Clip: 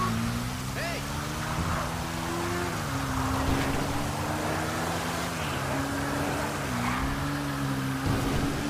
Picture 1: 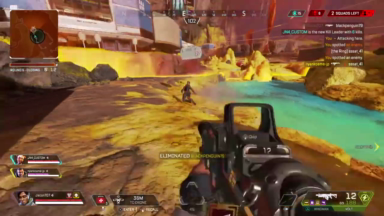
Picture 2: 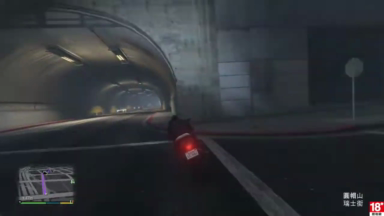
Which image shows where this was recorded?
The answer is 2